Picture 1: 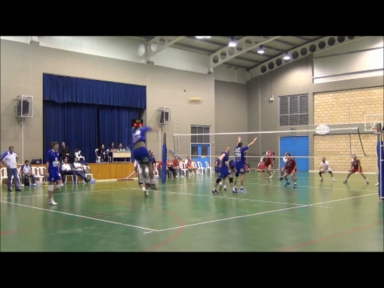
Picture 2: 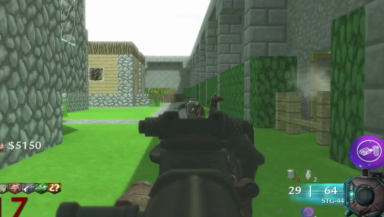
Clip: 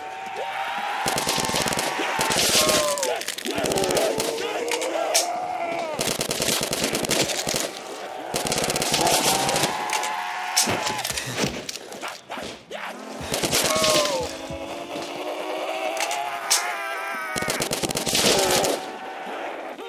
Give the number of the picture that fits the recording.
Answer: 2